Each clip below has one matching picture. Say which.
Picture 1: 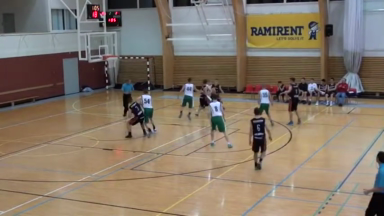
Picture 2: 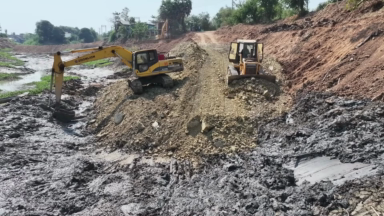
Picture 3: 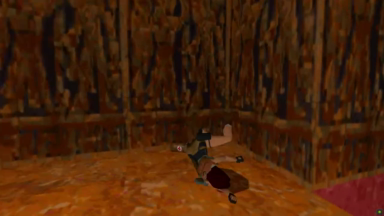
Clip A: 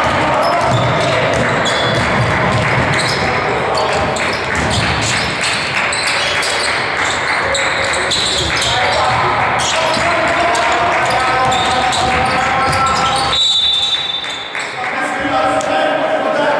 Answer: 1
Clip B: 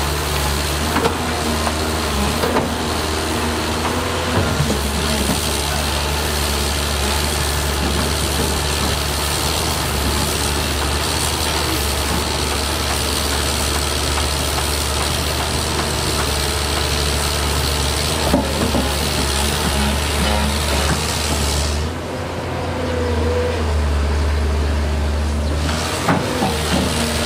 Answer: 2